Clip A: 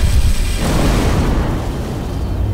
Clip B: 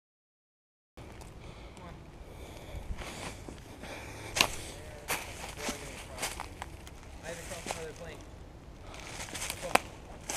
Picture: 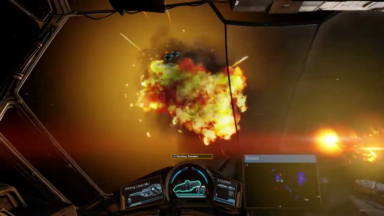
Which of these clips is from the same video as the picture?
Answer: A